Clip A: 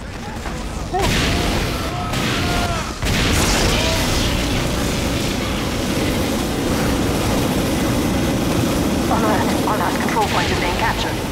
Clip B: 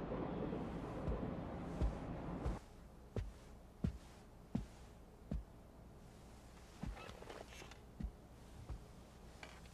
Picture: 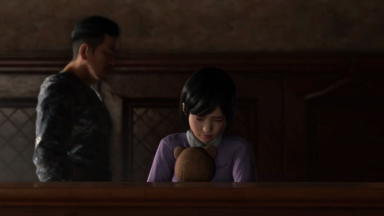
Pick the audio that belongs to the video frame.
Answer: B